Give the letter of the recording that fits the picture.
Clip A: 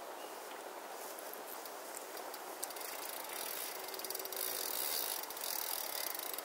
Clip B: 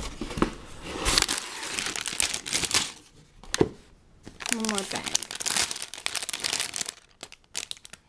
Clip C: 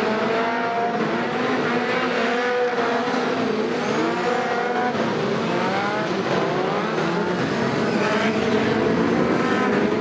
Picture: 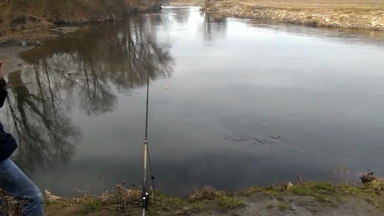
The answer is A